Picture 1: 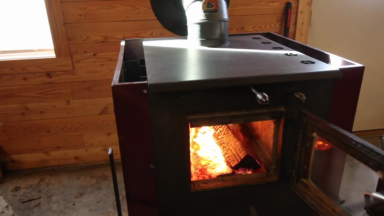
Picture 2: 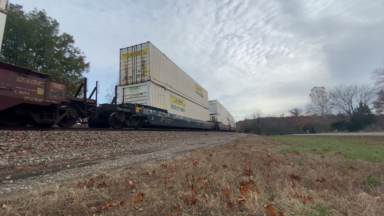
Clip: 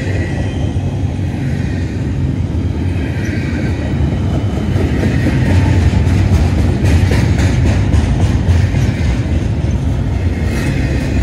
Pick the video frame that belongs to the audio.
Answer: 2